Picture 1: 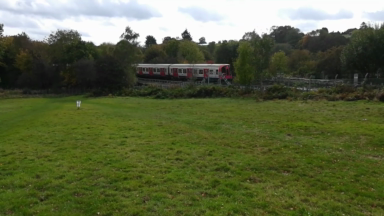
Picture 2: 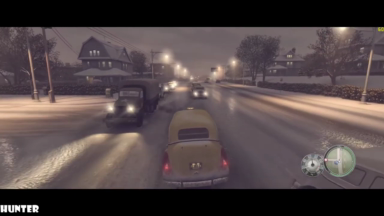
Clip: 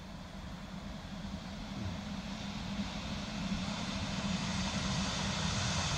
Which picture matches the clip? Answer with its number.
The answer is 1